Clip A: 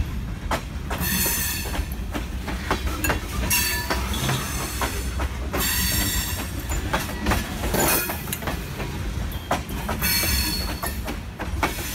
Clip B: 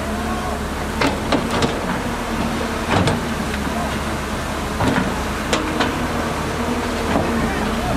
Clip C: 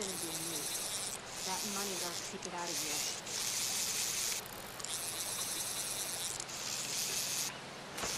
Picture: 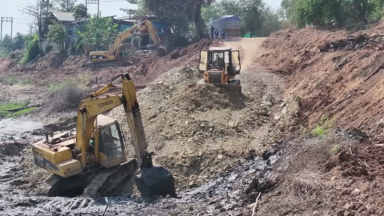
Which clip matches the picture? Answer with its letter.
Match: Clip B